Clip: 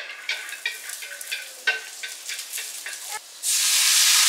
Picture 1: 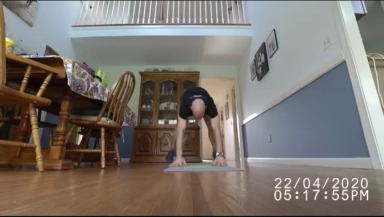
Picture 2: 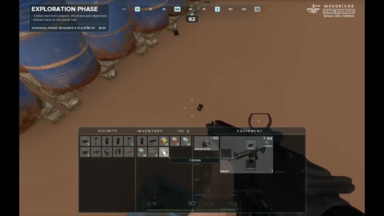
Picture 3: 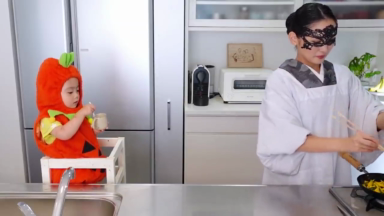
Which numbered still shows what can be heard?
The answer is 3